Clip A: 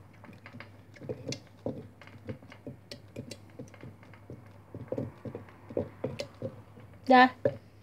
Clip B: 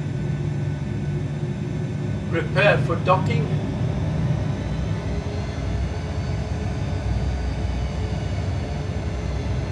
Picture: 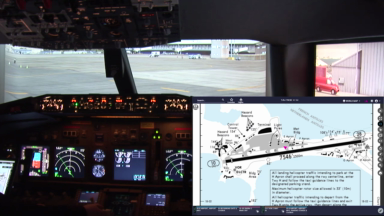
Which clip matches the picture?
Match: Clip B